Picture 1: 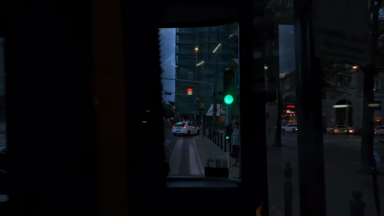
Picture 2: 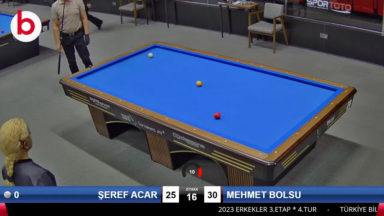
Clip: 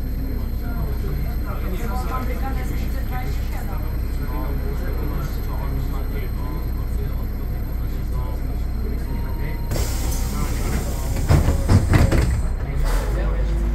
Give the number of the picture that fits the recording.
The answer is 1